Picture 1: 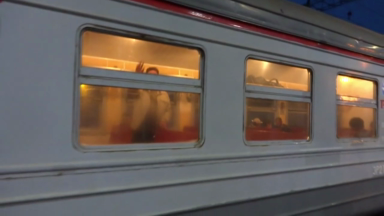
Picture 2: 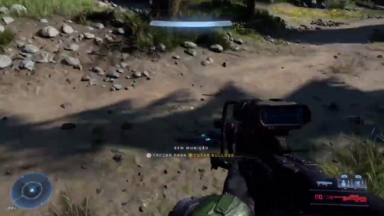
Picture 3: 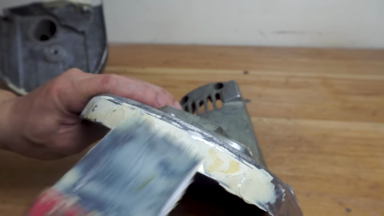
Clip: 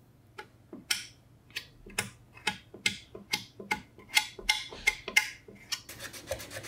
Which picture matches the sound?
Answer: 3